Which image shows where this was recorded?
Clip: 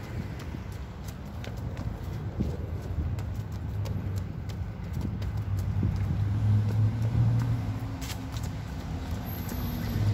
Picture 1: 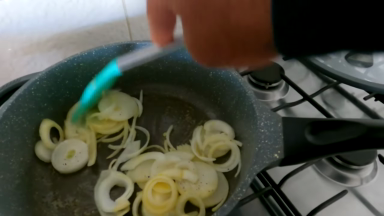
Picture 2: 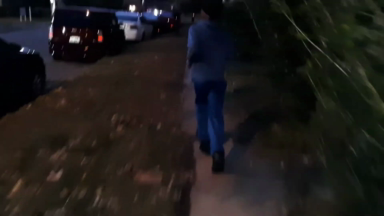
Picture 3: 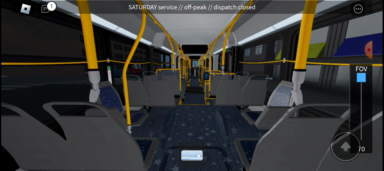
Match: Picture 2